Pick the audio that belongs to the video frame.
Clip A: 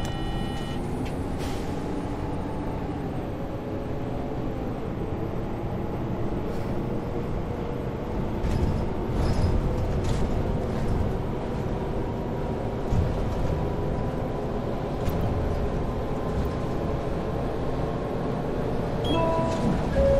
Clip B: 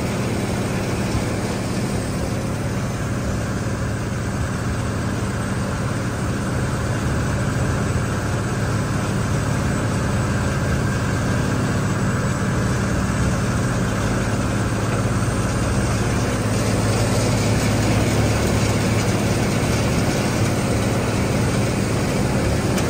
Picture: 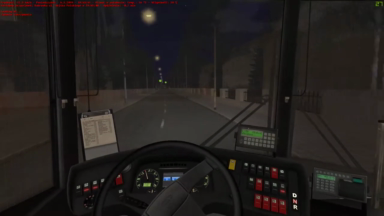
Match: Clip A